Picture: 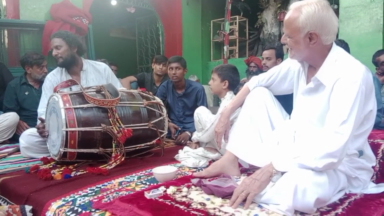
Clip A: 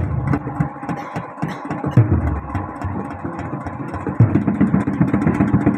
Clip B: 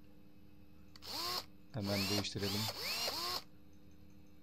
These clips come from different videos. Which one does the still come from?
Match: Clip A